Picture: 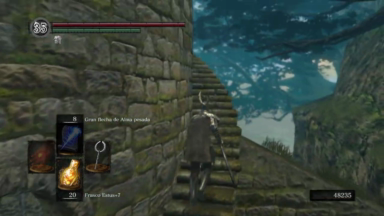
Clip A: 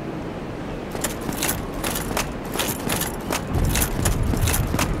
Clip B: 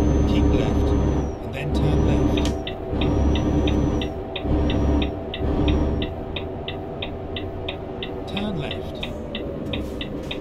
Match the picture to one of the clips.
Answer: A